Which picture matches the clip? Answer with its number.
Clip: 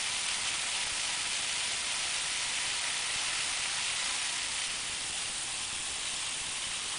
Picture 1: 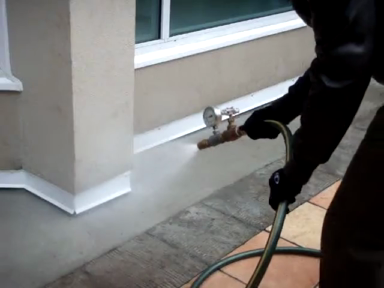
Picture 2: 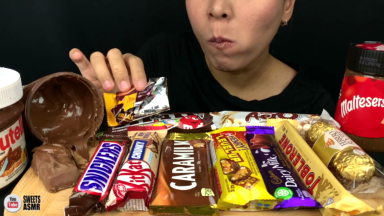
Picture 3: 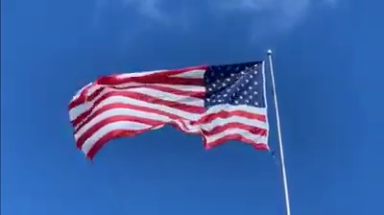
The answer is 1